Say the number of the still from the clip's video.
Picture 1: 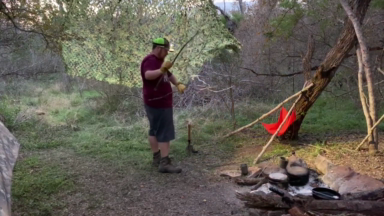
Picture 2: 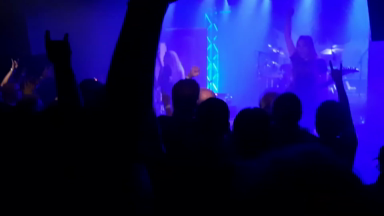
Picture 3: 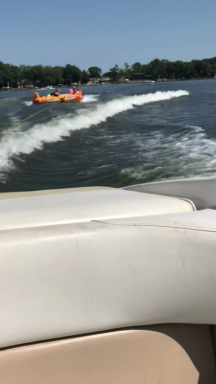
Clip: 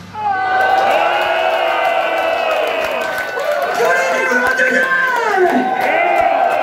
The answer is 2